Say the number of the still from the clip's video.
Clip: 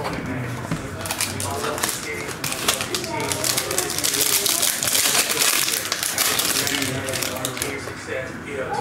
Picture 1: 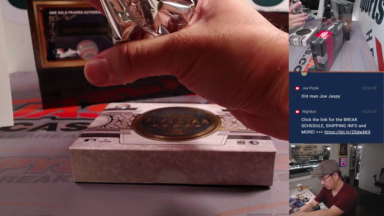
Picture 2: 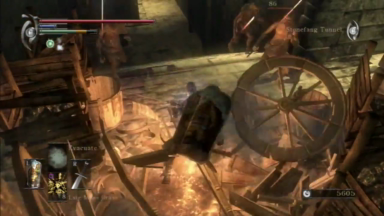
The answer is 1